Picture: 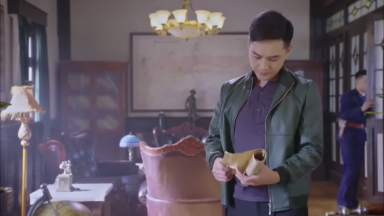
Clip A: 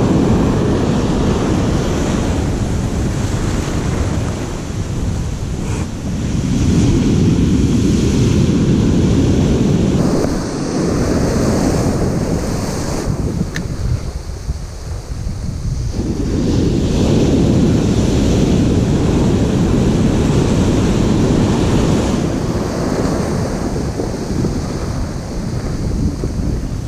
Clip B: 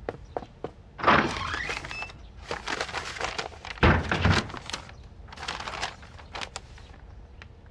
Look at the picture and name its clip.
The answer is B